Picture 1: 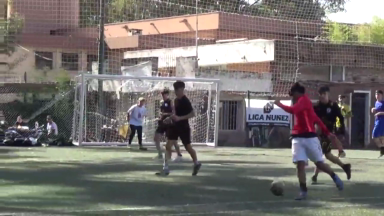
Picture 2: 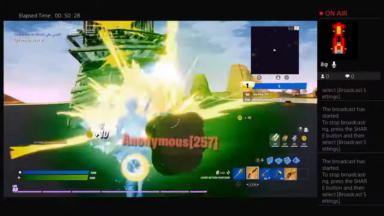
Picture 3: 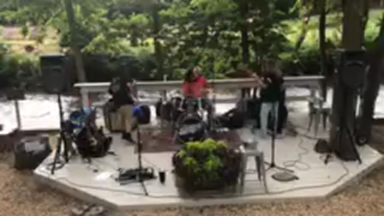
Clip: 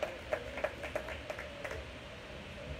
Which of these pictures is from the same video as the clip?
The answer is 3